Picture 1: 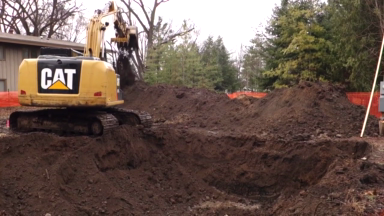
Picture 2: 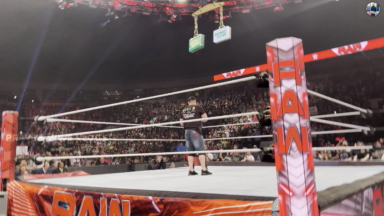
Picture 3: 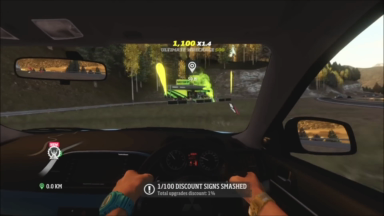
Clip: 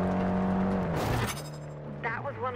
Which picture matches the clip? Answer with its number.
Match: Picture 3